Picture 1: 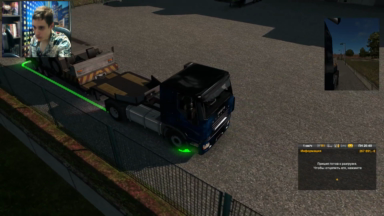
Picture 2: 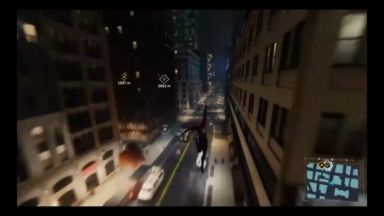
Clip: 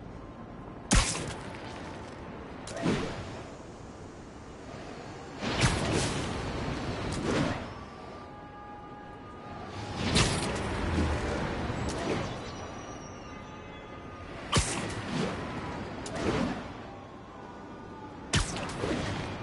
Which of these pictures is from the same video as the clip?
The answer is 2